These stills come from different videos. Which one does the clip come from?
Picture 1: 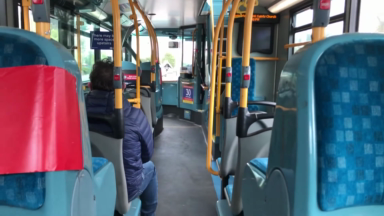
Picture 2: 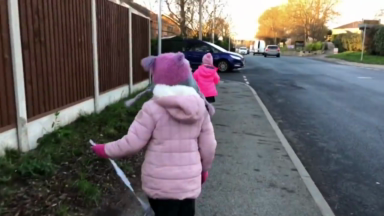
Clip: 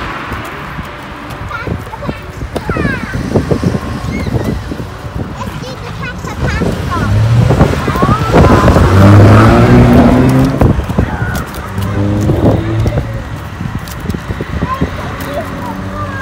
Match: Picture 2